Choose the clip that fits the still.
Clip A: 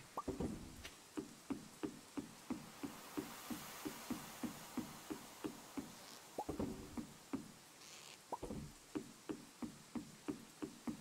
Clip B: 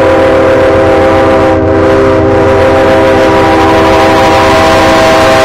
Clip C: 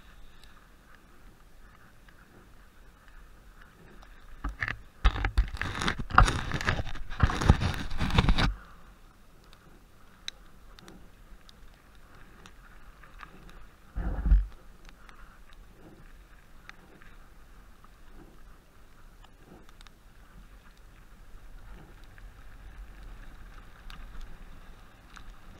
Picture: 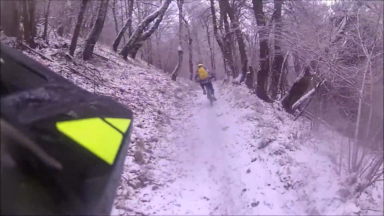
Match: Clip C